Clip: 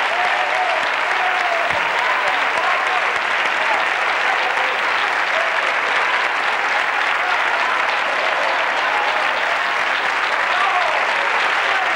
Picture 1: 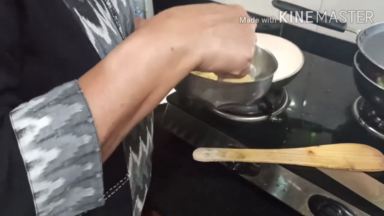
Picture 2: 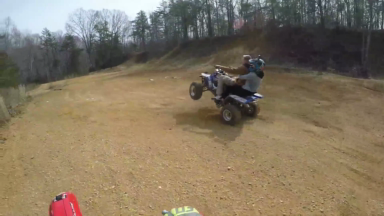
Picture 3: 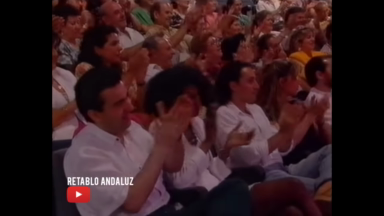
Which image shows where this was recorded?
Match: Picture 3